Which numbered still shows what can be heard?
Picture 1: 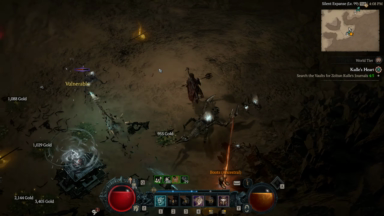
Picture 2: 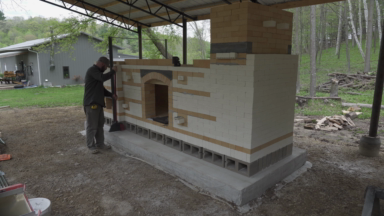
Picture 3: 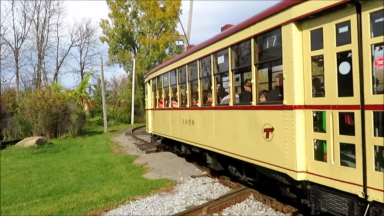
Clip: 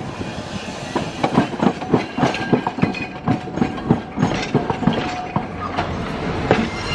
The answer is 3